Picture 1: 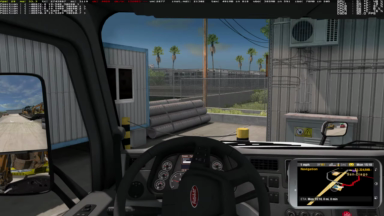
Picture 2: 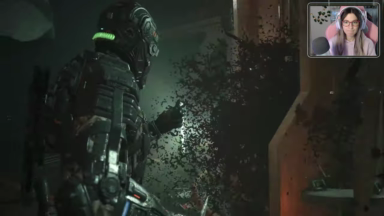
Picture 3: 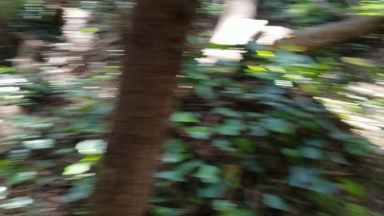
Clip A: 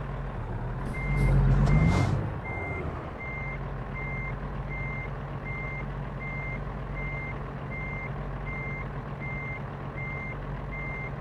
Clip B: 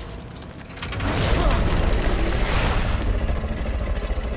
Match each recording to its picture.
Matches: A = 1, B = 2